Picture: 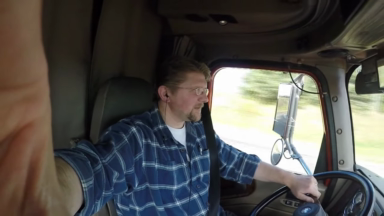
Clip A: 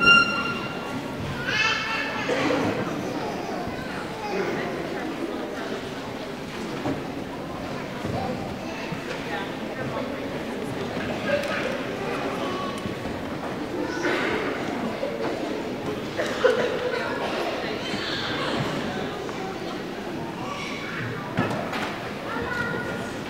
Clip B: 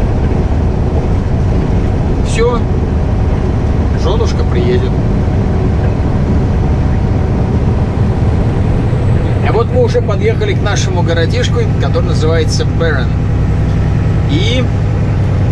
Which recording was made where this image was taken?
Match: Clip B